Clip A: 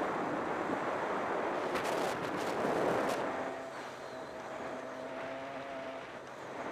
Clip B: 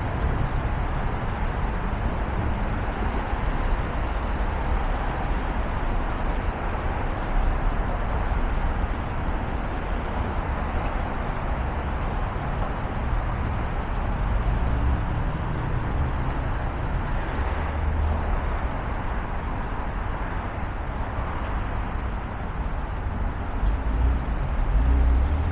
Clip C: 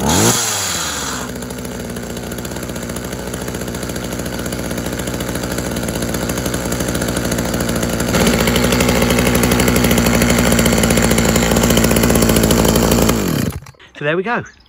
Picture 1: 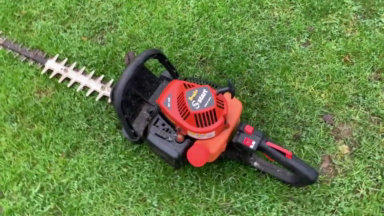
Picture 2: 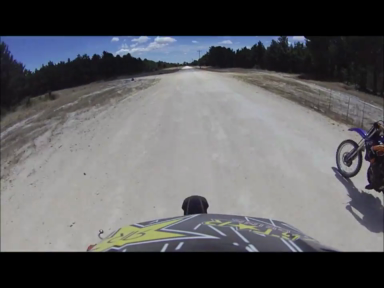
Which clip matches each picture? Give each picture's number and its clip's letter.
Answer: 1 C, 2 A